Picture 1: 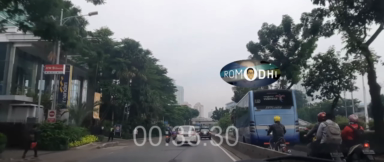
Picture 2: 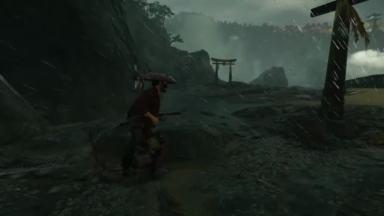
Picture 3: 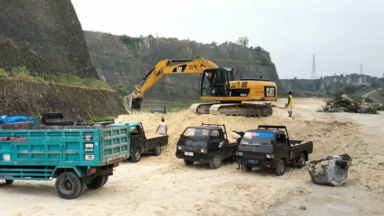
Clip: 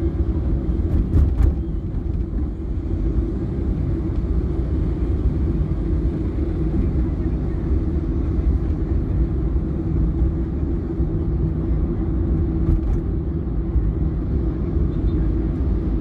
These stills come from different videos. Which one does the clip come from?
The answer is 1